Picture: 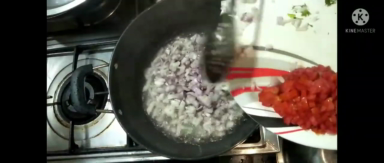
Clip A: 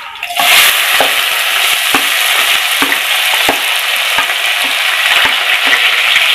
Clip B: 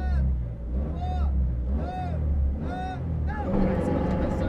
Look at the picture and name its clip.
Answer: A